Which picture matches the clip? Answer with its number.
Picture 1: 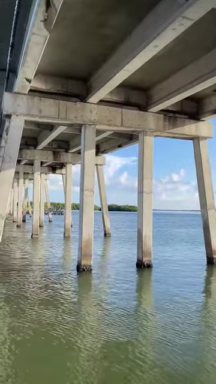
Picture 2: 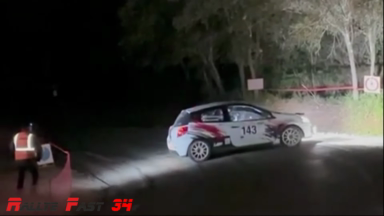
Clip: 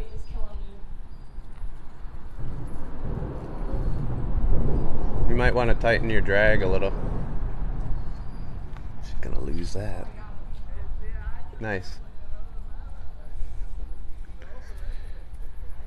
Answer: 1